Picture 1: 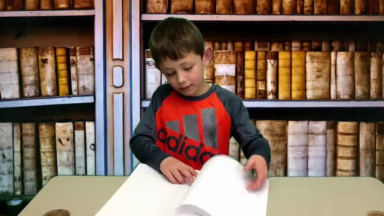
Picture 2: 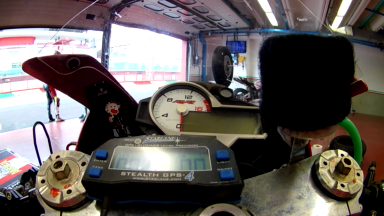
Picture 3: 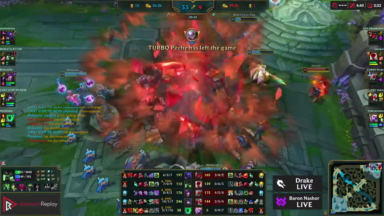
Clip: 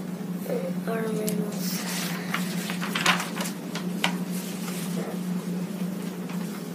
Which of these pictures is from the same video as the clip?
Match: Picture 1